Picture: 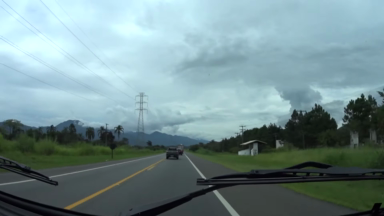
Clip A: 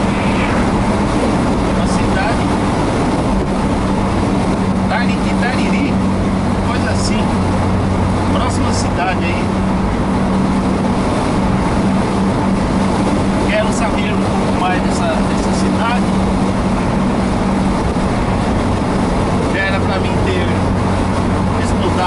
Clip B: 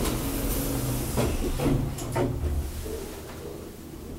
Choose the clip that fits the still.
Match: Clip A